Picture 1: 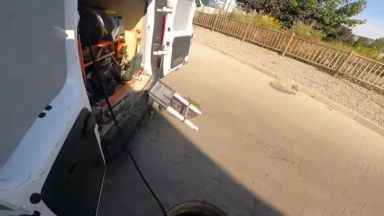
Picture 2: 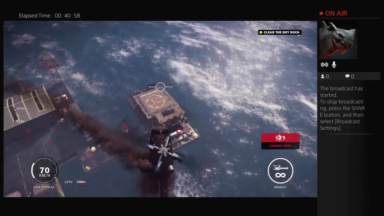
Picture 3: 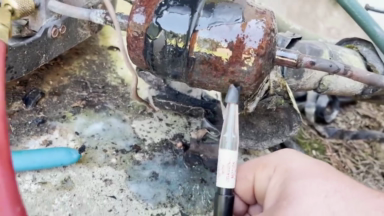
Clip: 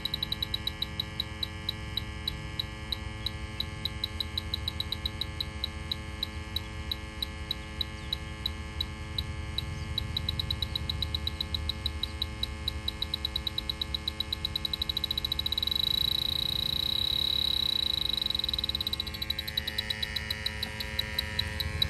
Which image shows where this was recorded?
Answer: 3